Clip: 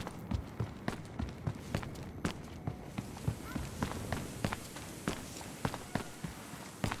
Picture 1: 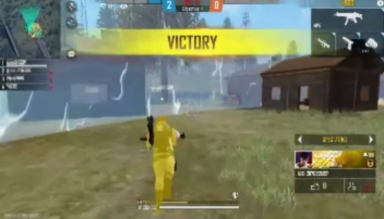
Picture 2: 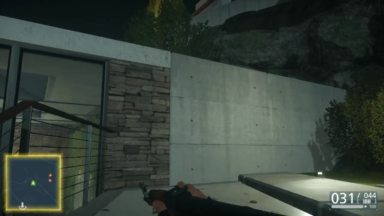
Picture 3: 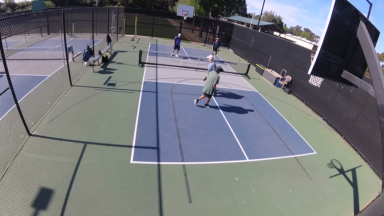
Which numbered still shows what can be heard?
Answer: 2